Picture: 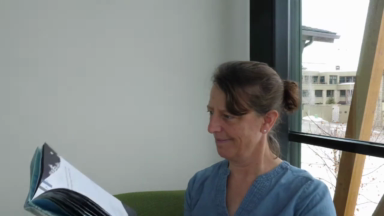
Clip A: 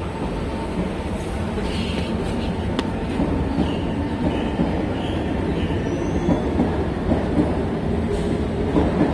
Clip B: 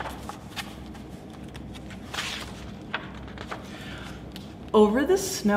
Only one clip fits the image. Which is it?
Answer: B